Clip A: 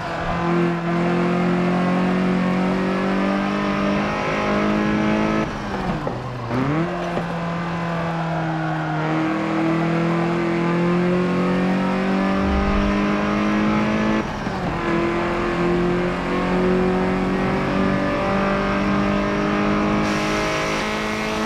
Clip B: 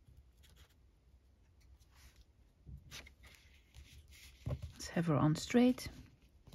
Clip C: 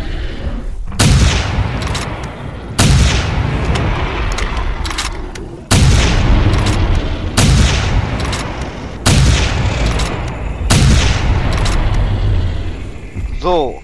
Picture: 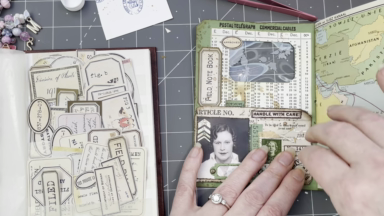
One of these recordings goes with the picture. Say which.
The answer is B